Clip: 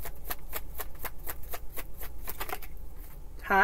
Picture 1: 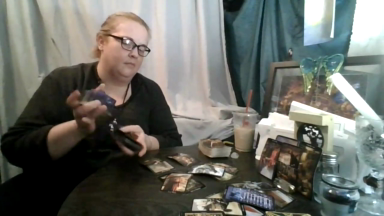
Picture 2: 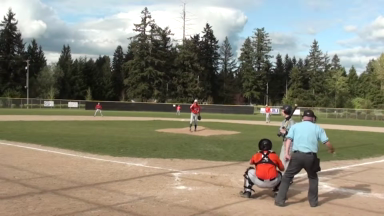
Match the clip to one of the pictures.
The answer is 1